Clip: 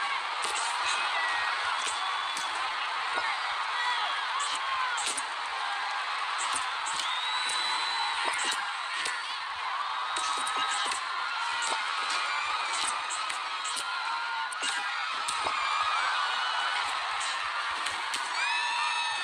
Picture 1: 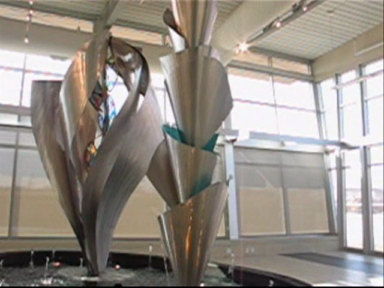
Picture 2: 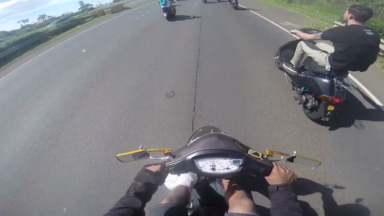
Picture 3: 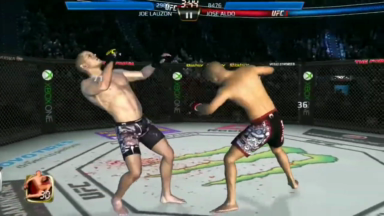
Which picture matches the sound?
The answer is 3